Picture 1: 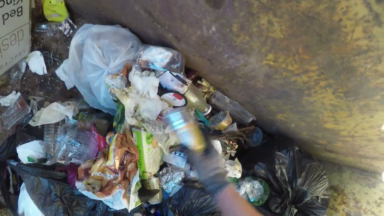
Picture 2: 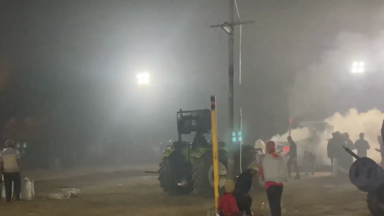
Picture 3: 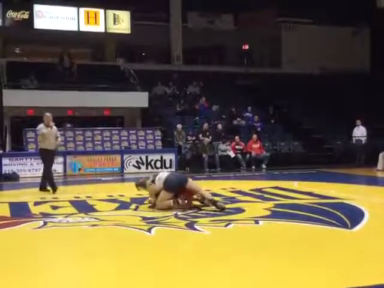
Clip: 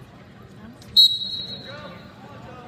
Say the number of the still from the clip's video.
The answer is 3